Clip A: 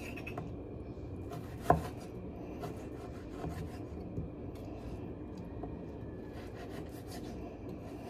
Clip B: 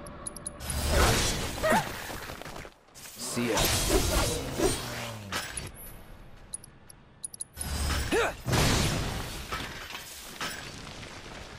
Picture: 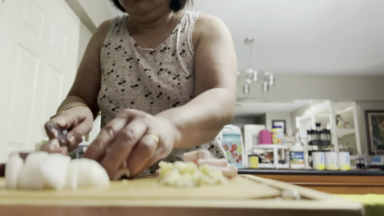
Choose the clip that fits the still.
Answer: A